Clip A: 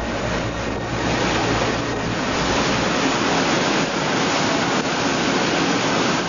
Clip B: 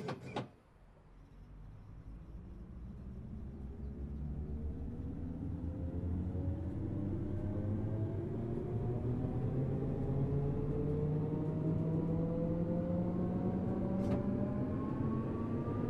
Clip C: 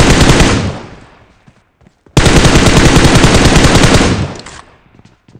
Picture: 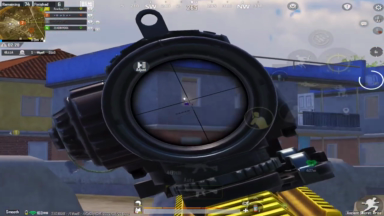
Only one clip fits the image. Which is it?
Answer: C